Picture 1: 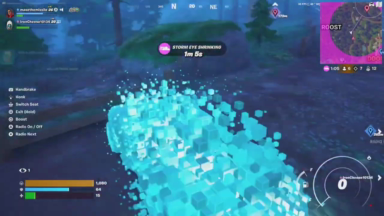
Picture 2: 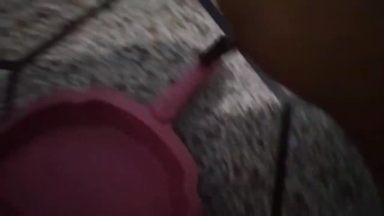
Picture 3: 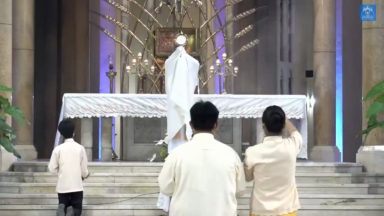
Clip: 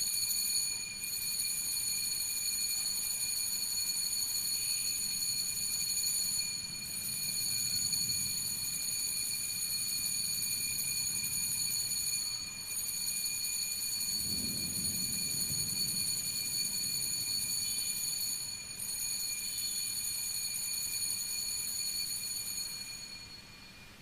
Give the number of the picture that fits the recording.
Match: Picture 3